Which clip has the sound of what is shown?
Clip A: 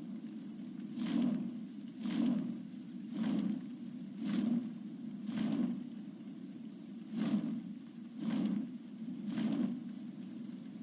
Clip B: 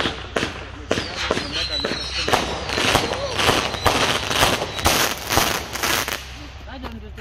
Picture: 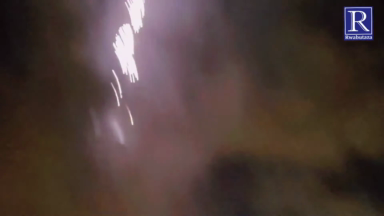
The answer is B